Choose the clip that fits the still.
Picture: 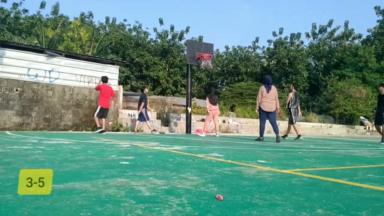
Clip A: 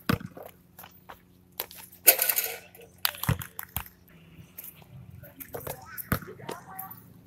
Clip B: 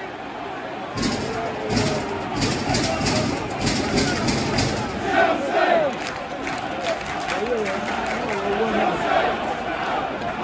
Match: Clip A